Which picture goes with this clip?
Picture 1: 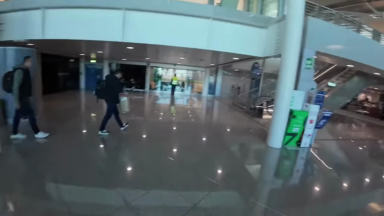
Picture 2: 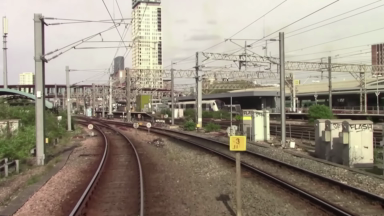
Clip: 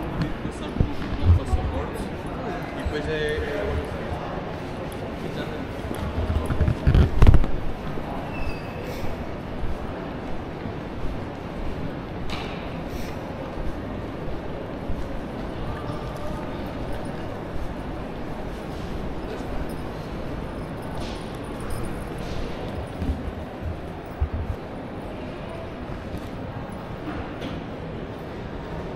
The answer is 1